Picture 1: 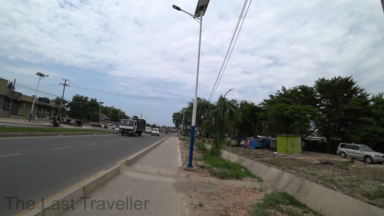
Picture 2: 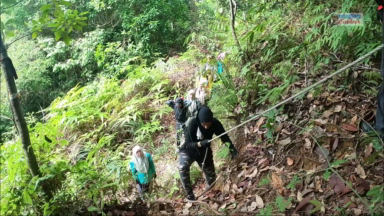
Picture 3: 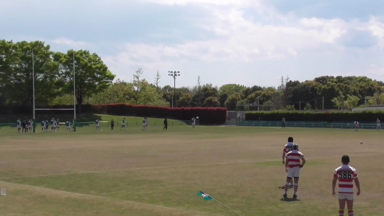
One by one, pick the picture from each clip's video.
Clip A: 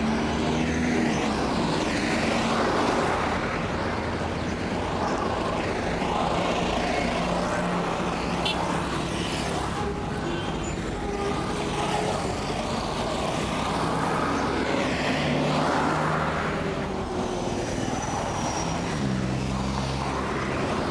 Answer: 1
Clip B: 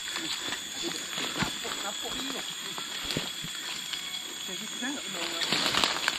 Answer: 2